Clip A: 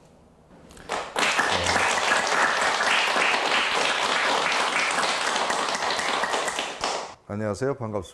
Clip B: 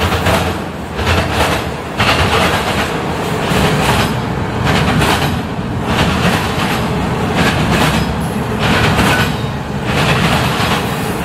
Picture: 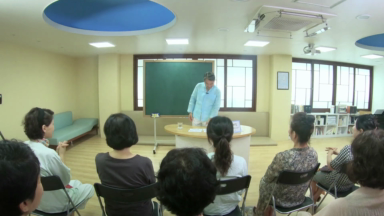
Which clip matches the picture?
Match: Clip A